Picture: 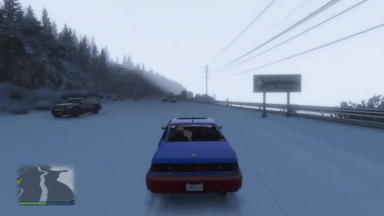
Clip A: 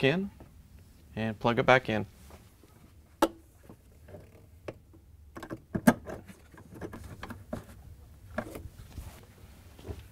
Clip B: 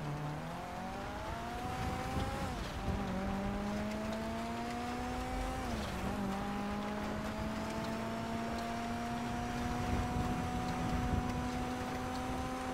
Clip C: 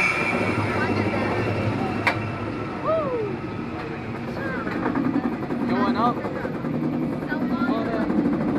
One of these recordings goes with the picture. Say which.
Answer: B